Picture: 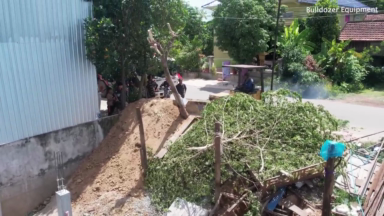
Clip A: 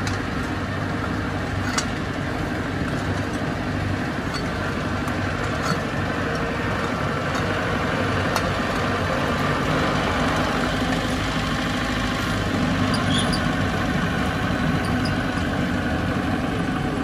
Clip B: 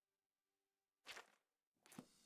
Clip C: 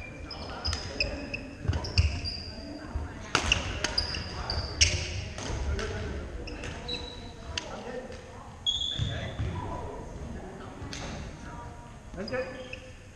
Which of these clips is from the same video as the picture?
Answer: A